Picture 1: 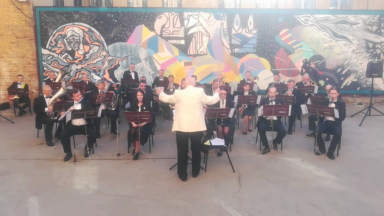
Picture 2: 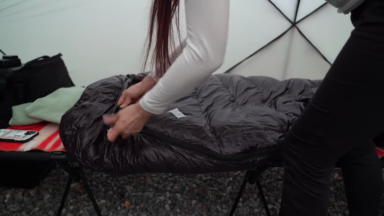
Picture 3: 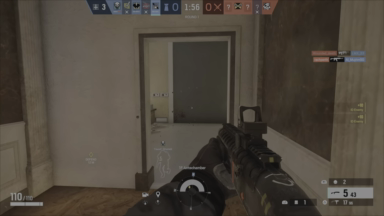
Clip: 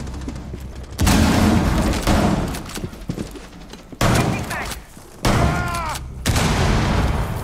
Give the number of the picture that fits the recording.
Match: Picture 3